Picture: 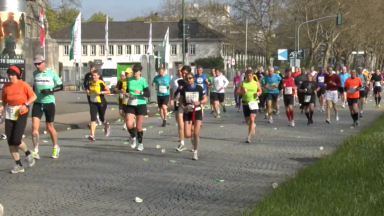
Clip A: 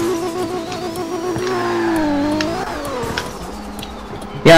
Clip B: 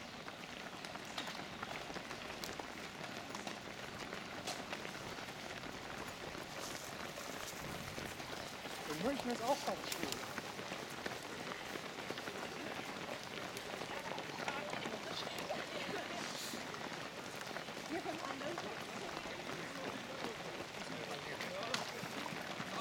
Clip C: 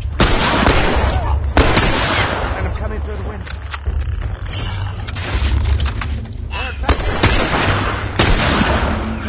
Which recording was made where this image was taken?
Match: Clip B